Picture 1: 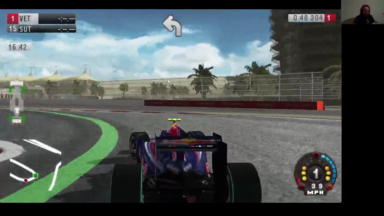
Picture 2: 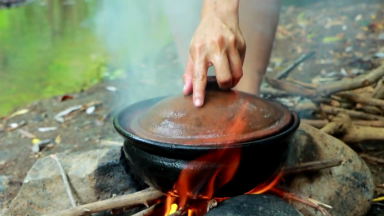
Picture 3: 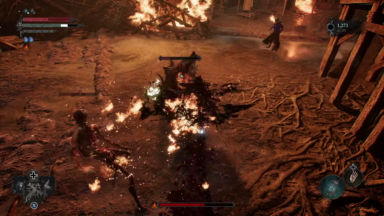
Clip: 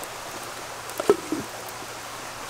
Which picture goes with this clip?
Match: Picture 2